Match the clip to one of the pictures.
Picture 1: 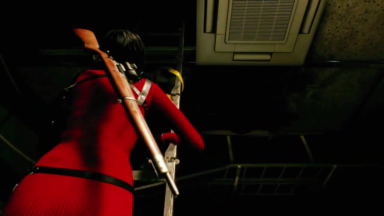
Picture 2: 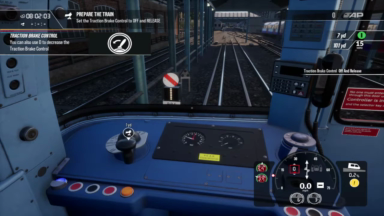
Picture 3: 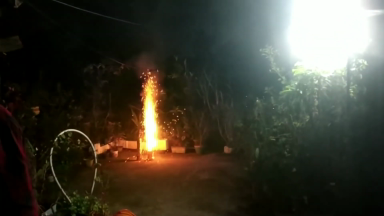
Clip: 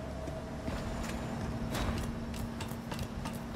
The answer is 1